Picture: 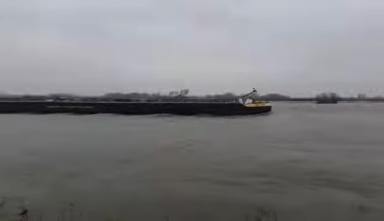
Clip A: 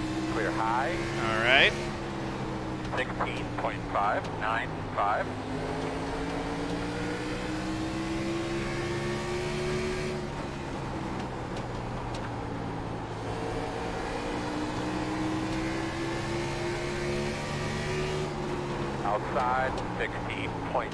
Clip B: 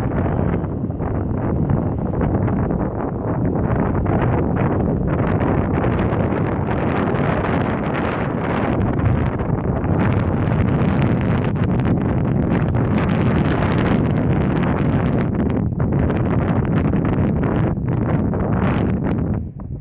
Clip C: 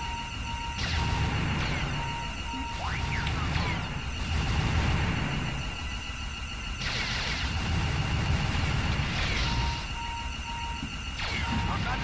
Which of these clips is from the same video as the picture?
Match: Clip B